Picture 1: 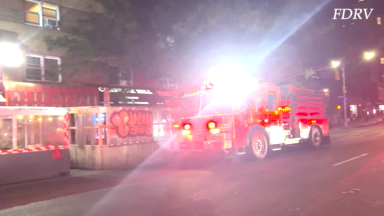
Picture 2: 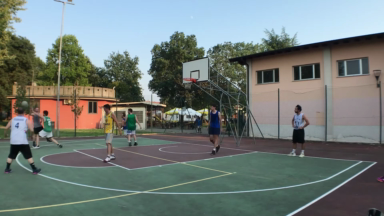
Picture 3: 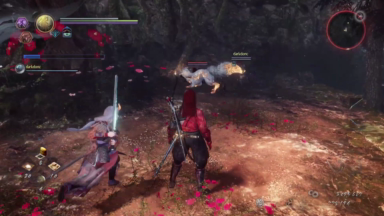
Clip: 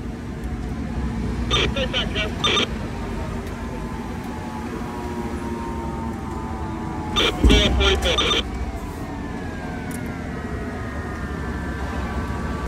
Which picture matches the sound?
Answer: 1